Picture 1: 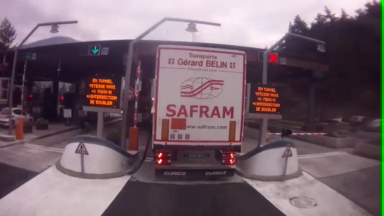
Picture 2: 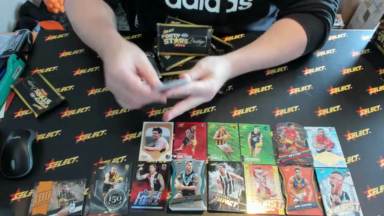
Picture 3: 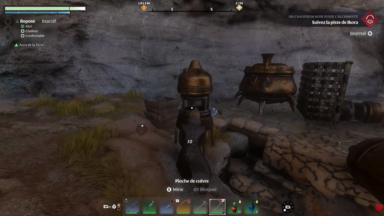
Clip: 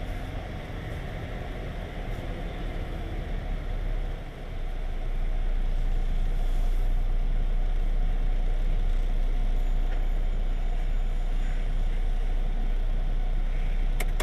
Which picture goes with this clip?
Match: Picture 1